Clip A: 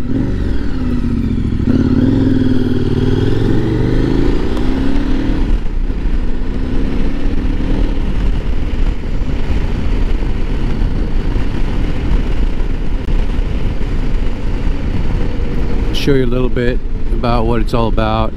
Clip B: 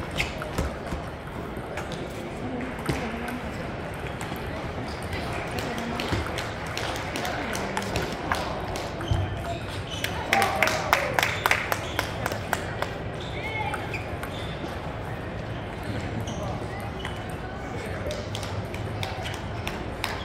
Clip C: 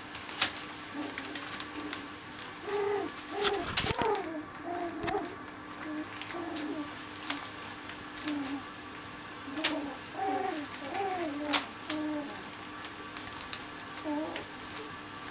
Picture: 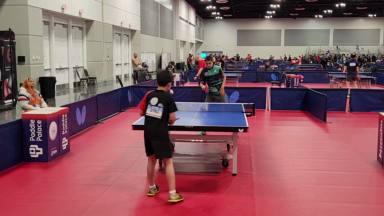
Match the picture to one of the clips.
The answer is B